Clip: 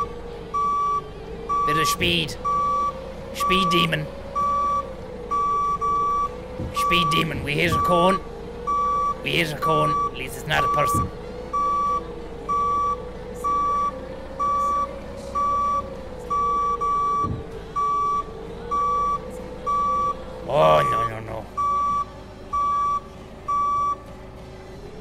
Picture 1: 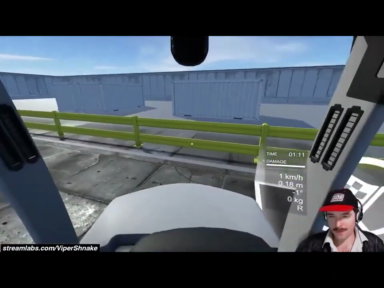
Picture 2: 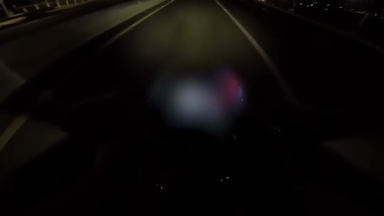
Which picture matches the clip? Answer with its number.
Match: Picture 1